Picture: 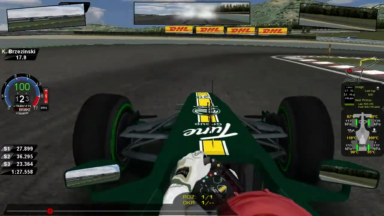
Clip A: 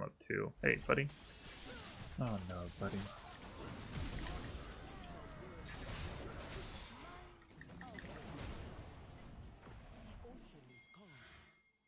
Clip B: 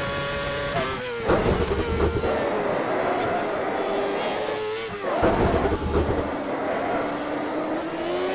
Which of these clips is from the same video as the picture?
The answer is B